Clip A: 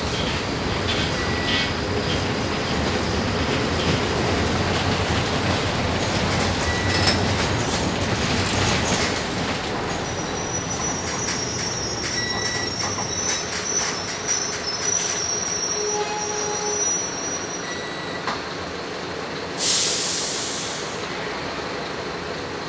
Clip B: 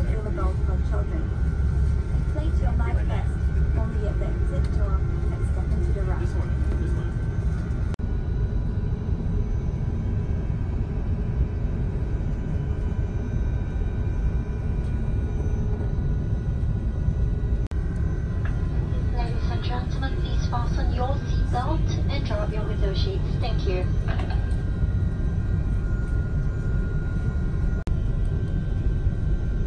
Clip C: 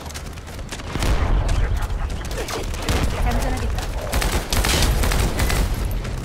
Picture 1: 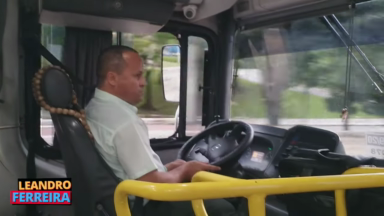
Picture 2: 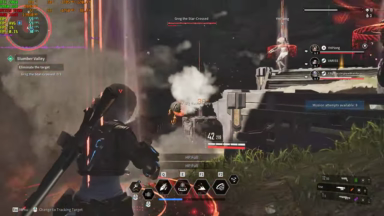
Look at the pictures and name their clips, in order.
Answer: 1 A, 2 C